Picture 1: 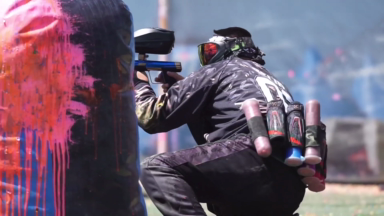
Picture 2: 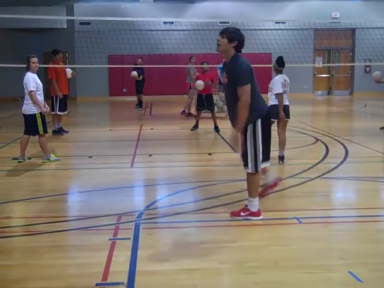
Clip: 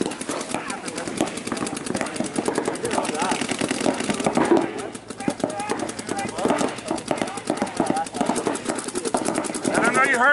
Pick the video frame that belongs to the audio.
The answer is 1